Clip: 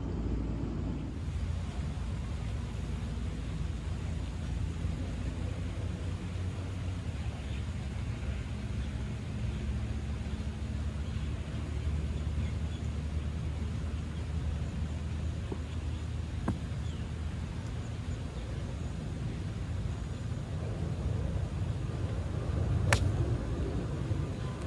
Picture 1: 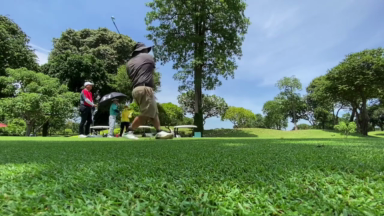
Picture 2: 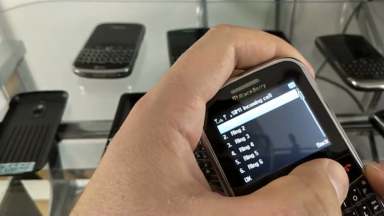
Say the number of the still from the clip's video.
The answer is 1